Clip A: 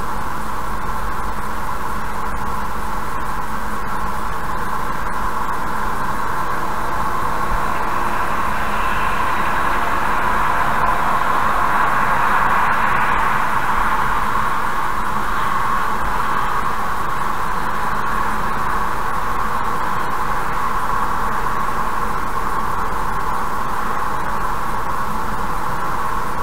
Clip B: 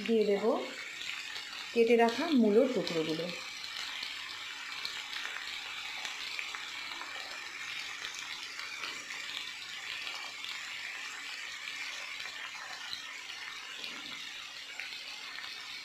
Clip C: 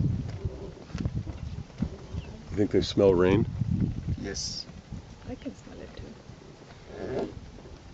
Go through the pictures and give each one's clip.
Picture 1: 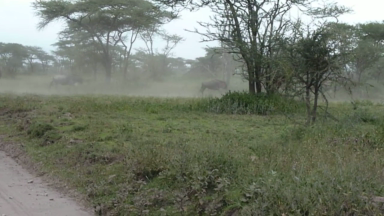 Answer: C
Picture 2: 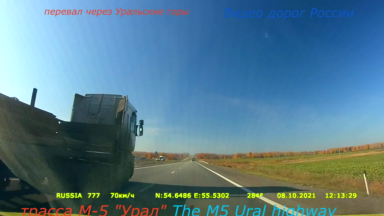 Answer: A